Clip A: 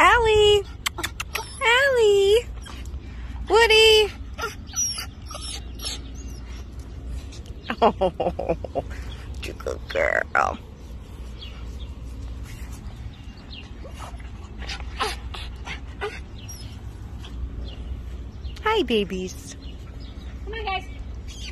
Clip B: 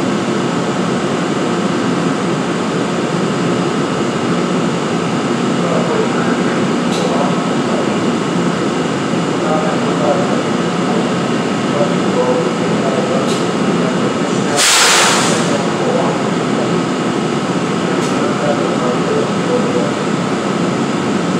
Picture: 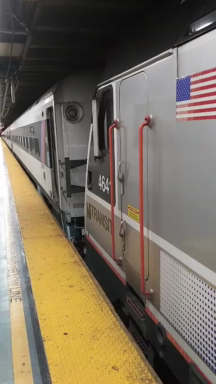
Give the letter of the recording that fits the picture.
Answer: B